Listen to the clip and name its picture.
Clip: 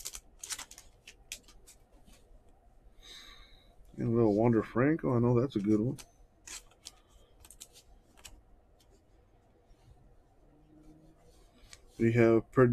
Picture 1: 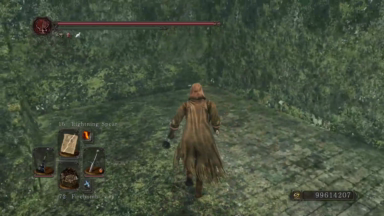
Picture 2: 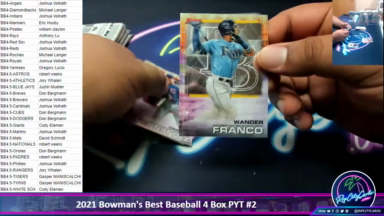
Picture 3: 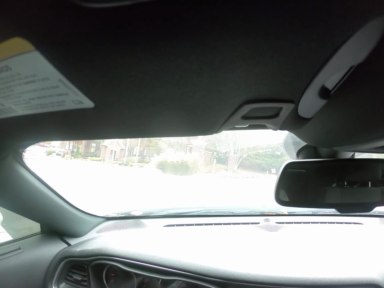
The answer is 2